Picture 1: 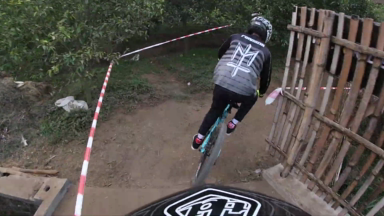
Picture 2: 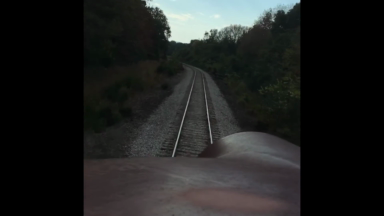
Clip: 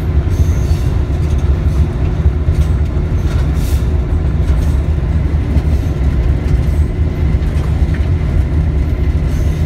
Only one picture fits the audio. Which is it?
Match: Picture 2